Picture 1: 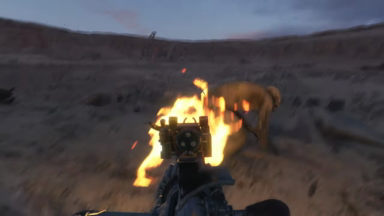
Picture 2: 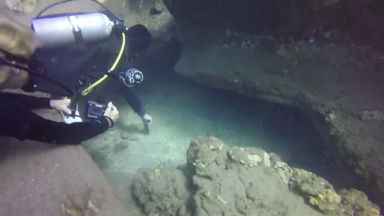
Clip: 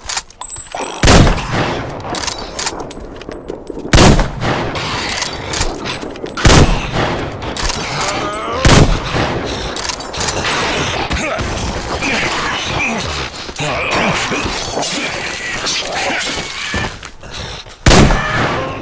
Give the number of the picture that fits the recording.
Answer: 1